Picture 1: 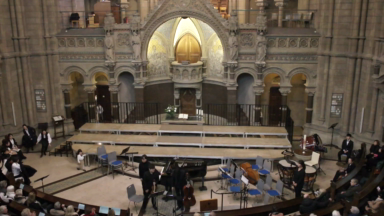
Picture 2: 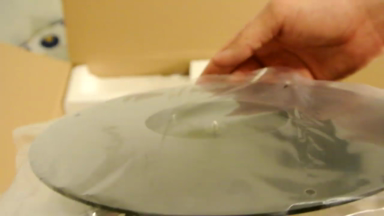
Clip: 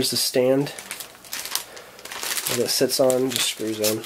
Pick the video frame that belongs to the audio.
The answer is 2